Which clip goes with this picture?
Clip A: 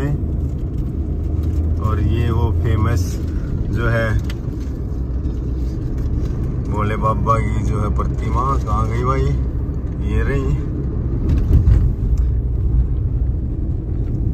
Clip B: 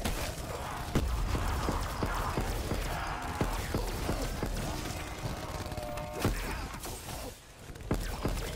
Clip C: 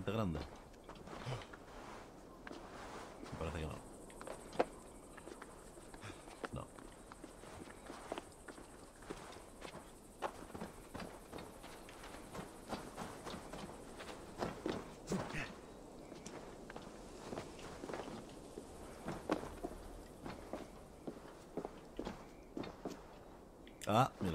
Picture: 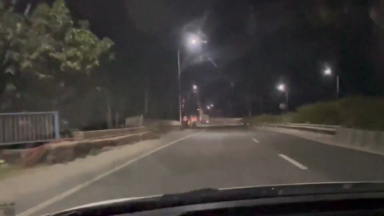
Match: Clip A